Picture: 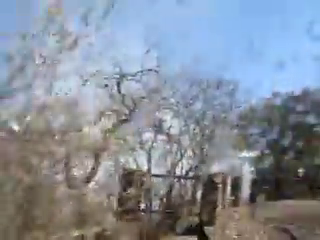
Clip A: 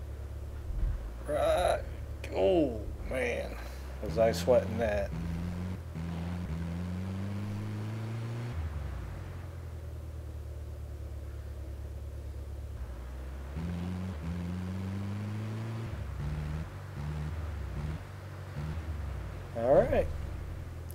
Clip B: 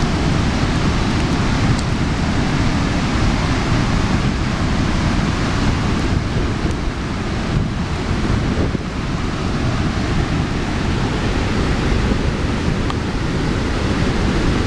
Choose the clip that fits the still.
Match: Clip B